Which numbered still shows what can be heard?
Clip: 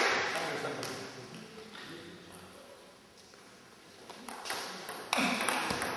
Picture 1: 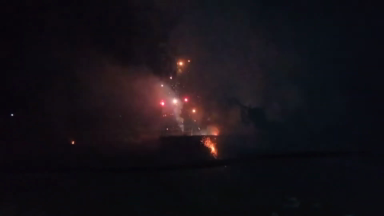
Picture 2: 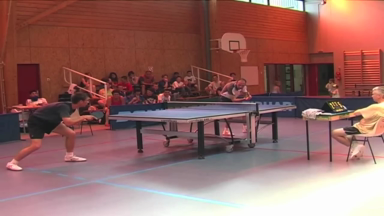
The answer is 2